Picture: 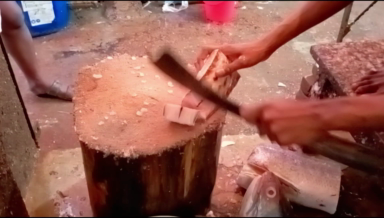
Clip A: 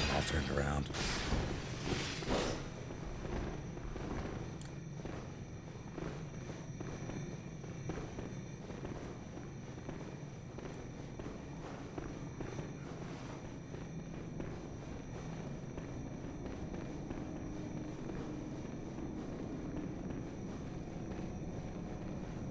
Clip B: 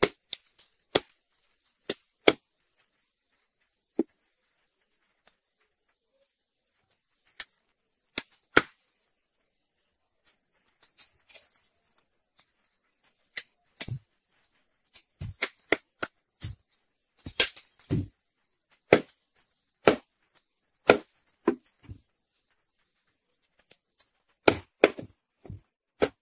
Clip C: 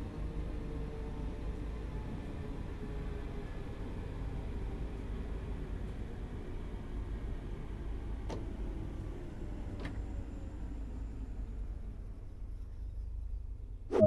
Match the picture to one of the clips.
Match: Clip B